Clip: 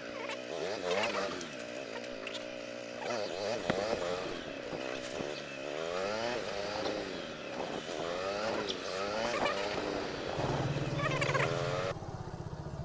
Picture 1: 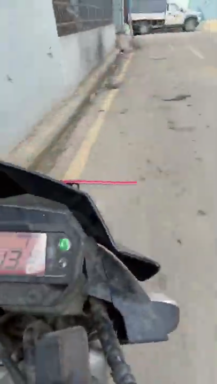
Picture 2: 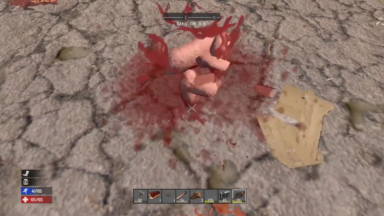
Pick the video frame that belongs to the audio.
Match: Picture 1